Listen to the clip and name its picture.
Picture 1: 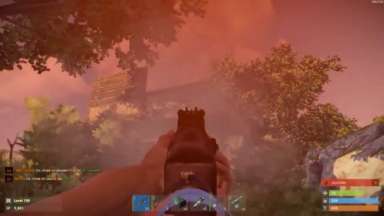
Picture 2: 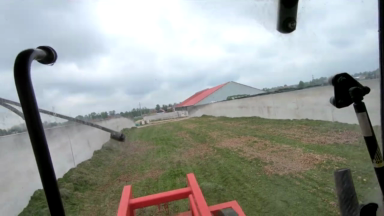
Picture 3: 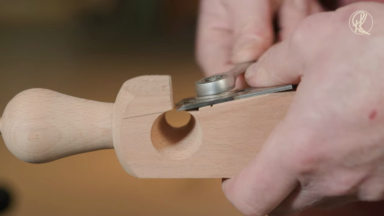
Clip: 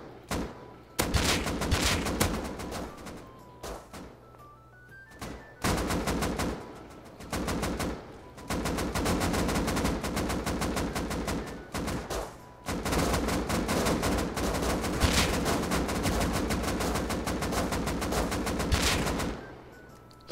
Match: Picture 1